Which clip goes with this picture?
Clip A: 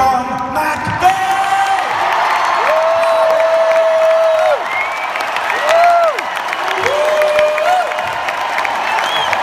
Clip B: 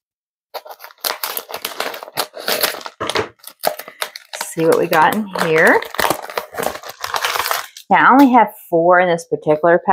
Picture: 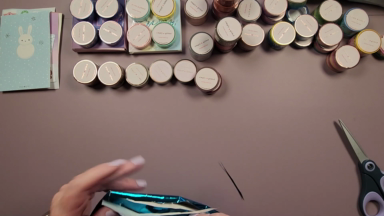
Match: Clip B